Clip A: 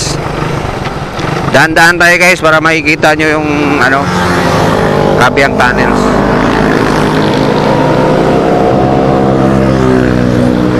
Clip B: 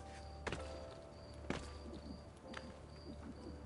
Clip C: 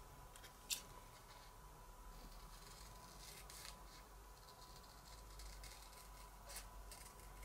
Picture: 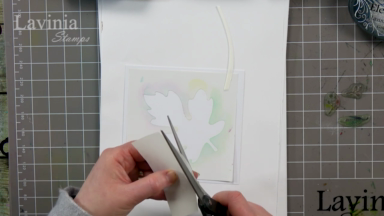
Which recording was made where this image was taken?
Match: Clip C